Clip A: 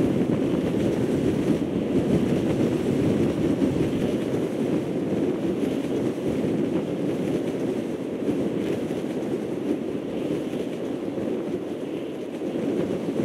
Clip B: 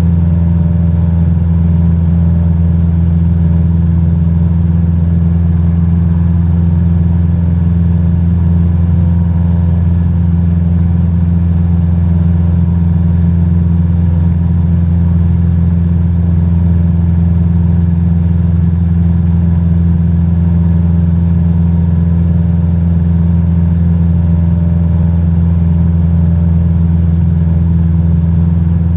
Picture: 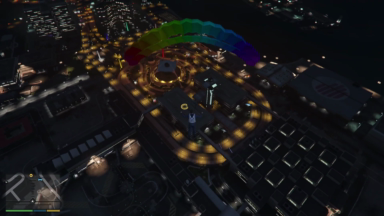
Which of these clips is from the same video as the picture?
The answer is A